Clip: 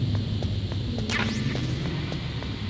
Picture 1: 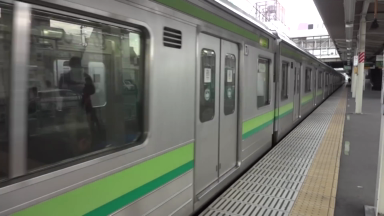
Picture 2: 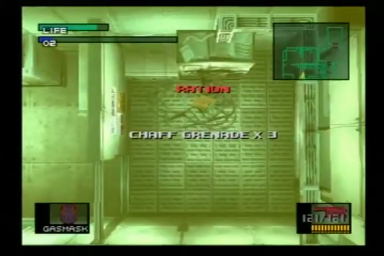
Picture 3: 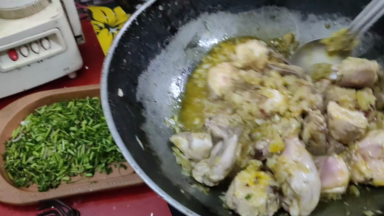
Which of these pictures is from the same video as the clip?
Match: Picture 2